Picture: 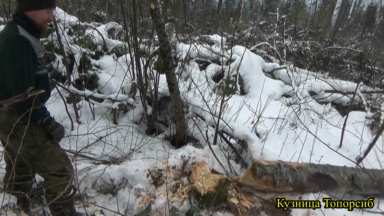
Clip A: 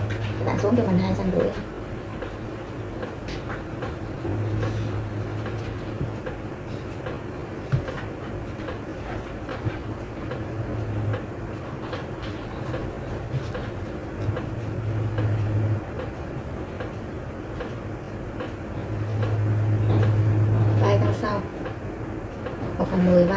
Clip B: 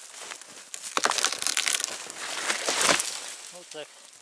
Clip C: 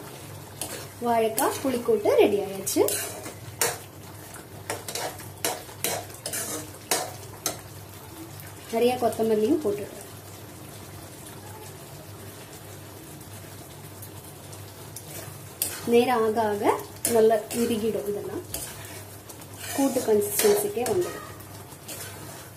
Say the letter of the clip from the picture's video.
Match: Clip B